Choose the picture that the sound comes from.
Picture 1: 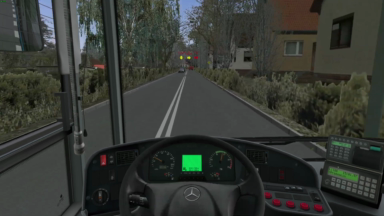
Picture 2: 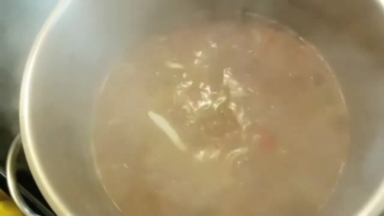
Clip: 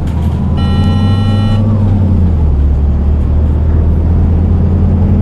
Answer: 1